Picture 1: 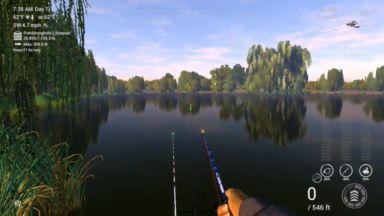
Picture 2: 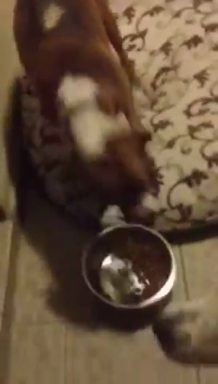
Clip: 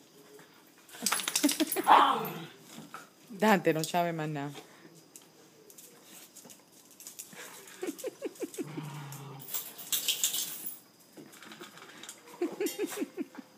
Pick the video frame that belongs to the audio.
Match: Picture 2